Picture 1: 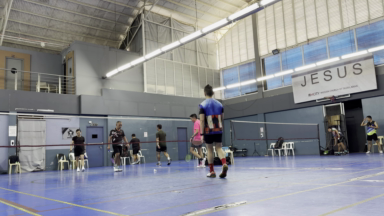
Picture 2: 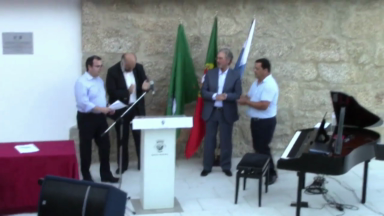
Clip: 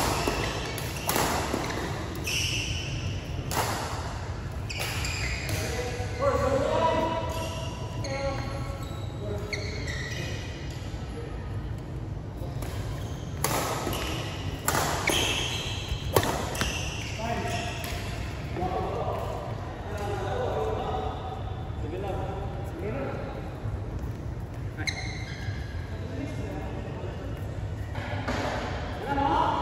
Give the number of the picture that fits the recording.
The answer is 1